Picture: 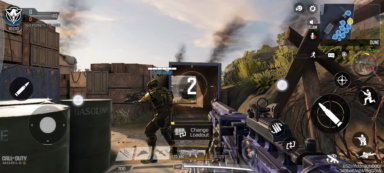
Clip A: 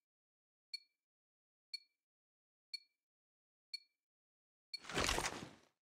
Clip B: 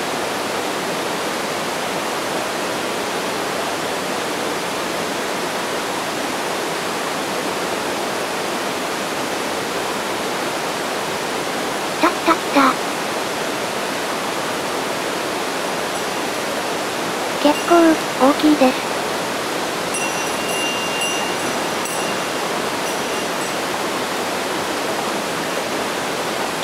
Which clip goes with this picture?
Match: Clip A